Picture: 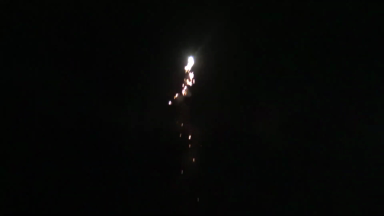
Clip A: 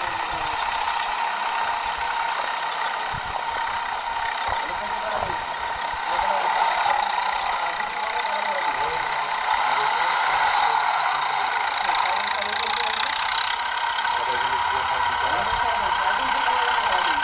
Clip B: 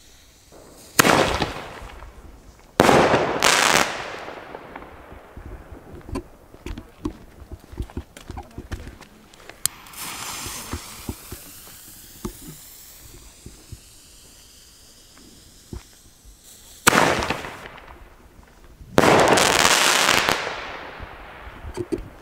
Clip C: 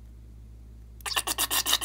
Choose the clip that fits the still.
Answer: B